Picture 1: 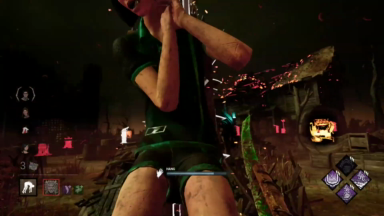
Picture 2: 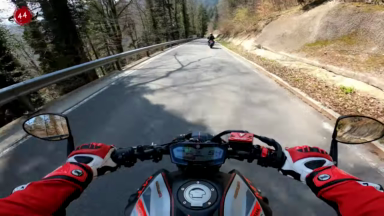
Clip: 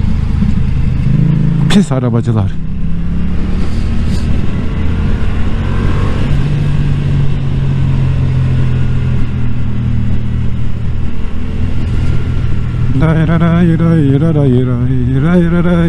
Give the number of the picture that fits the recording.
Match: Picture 2